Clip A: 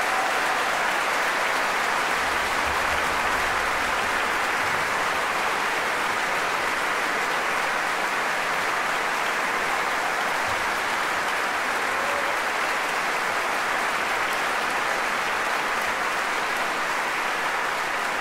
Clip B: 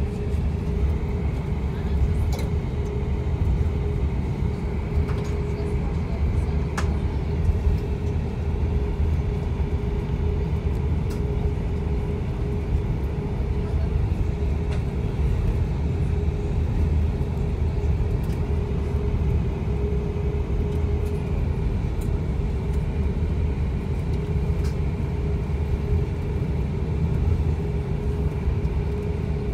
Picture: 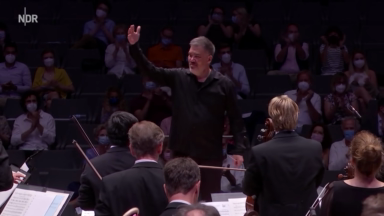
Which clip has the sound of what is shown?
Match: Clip A